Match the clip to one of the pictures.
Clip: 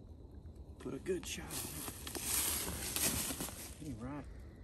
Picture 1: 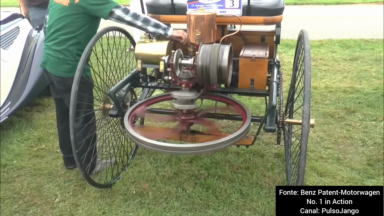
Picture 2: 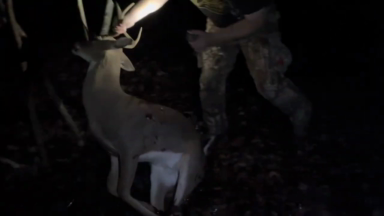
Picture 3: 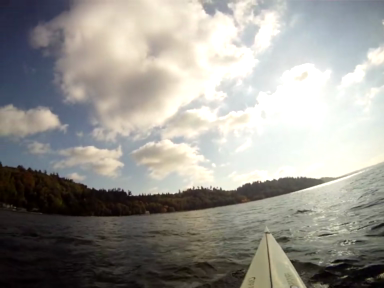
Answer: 2